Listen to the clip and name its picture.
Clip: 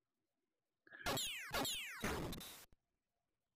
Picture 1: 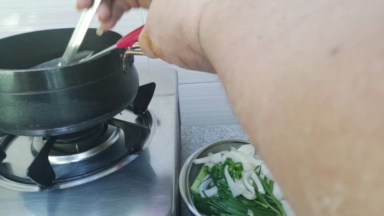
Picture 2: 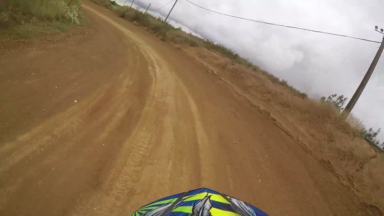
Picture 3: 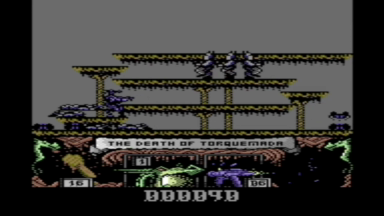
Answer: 3